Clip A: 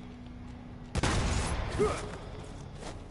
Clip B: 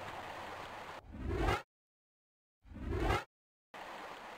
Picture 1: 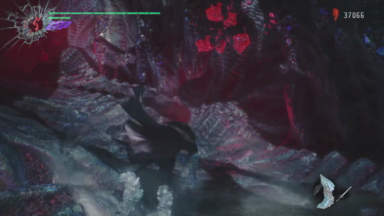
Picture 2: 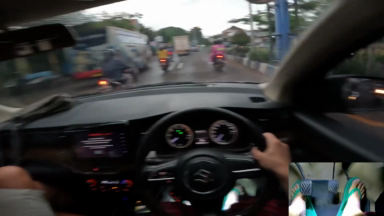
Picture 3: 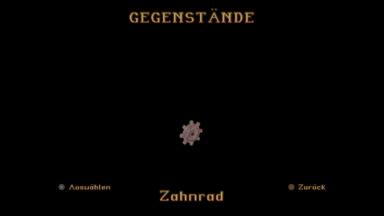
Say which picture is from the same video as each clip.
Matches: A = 1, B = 3